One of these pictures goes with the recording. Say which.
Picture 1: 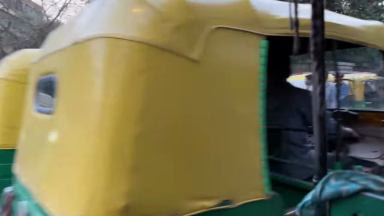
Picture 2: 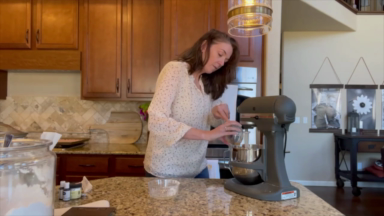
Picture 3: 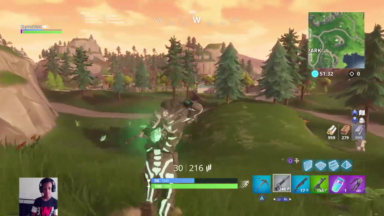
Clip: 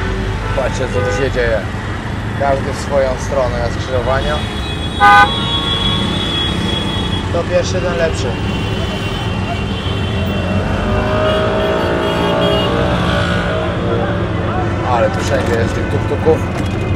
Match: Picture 1